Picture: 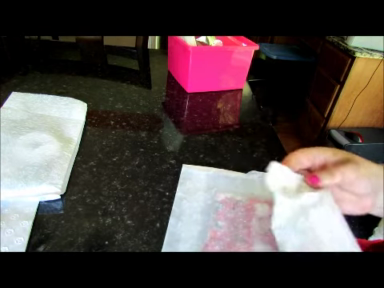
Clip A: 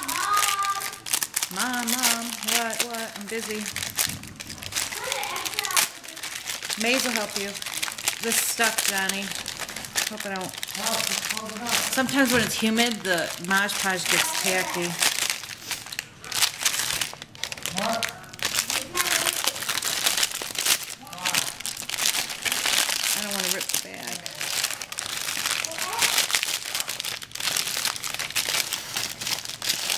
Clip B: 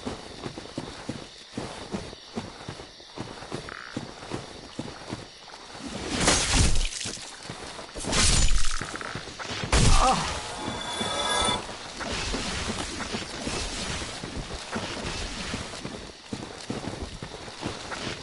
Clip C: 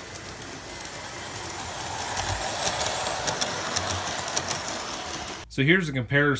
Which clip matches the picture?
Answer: A